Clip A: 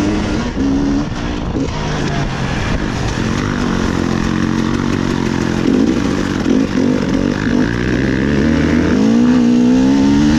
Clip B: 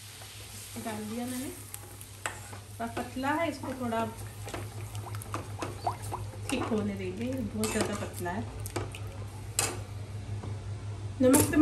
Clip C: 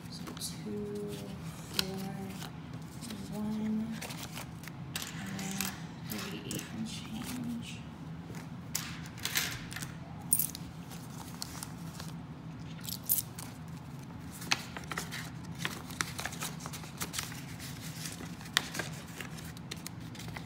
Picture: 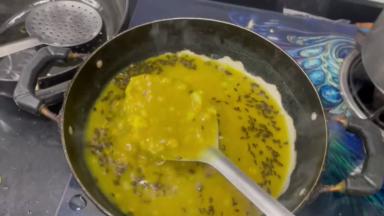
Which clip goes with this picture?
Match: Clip B